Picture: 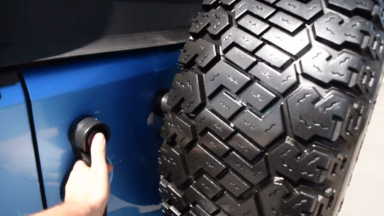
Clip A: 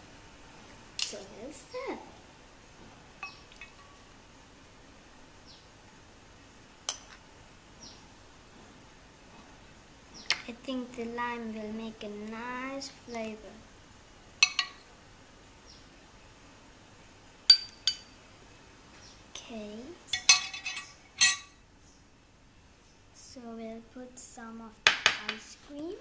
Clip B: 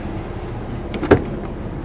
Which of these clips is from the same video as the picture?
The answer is B